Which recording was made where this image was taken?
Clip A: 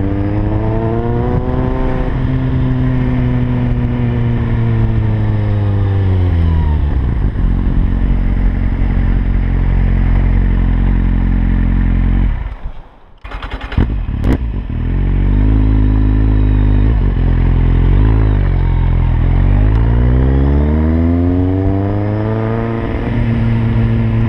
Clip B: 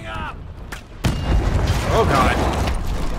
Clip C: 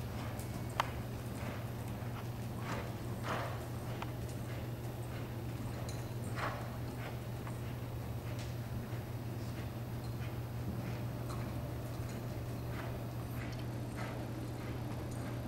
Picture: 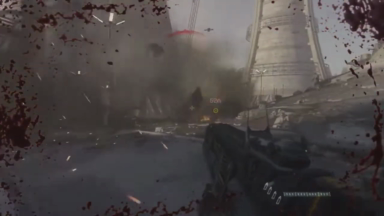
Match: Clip B